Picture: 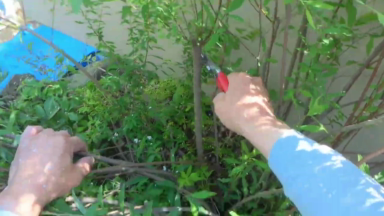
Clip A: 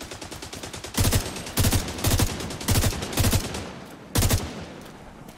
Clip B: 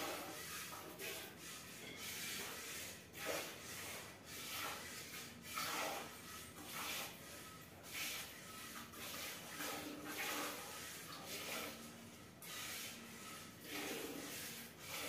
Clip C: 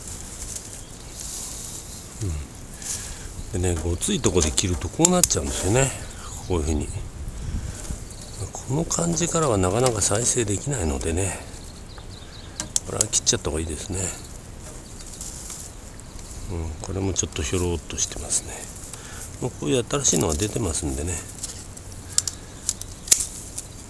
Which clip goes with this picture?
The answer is C